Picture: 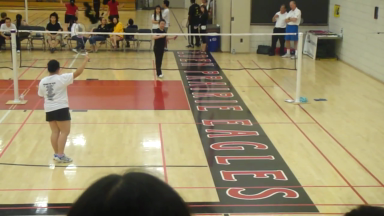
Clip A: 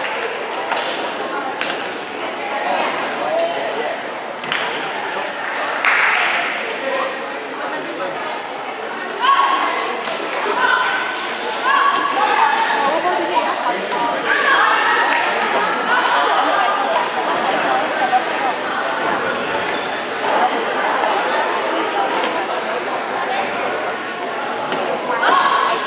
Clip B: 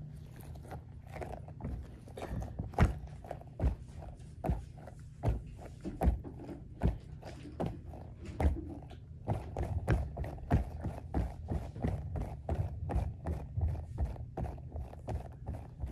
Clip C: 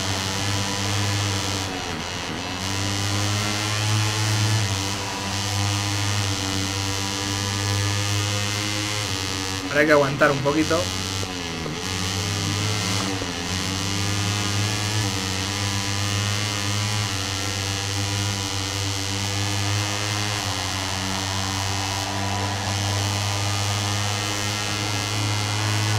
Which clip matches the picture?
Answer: A